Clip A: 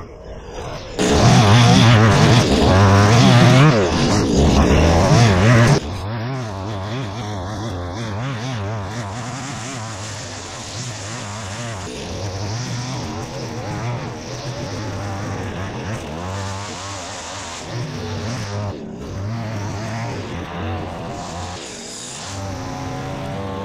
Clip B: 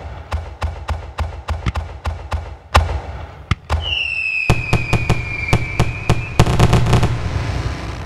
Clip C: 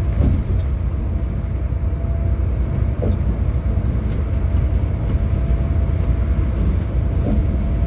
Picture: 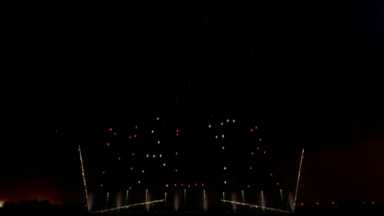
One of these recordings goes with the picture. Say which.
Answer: B